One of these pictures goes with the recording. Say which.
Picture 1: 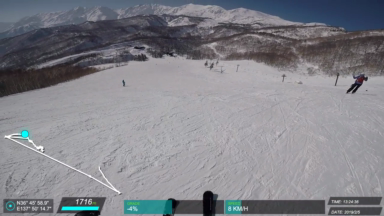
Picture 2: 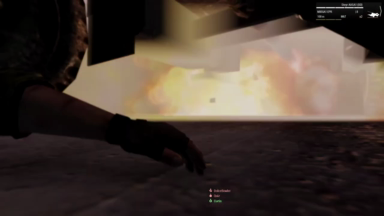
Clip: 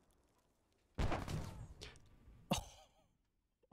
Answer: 2